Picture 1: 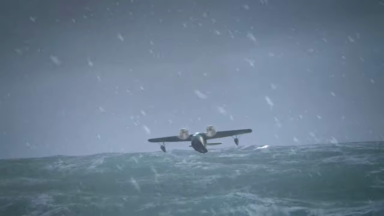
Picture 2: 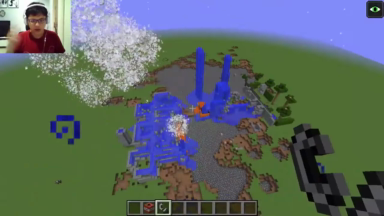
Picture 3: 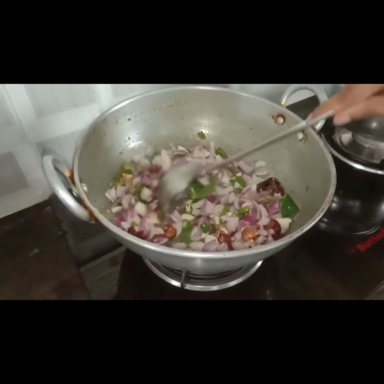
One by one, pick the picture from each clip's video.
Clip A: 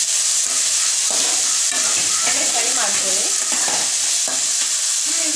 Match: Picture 3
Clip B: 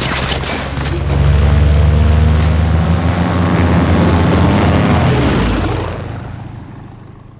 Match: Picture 1